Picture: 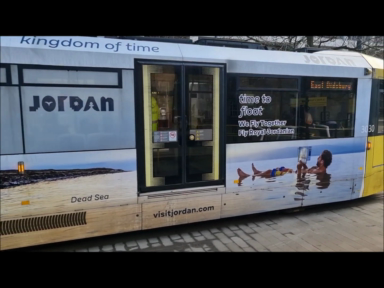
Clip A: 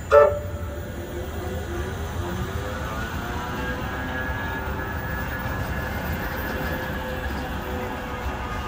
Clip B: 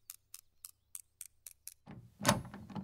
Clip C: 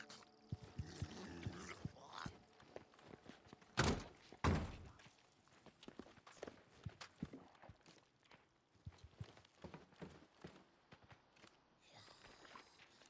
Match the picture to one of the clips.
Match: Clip A